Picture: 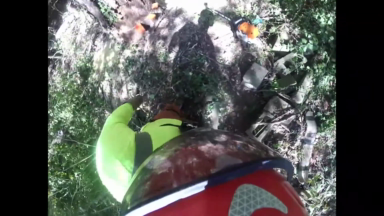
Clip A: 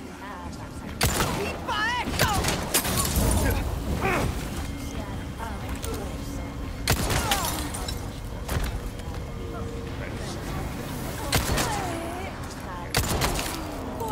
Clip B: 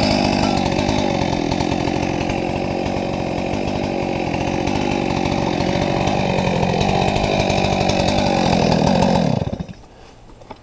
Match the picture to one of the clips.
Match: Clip B